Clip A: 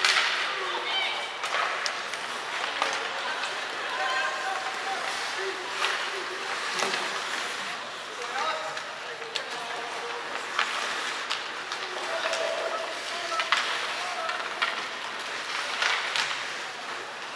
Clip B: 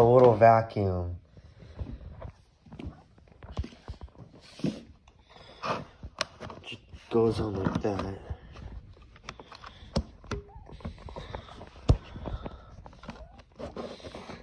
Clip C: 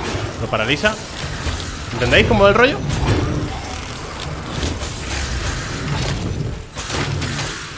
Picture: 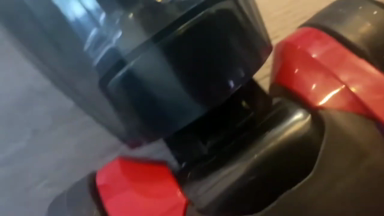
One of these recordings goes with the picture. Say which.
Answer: B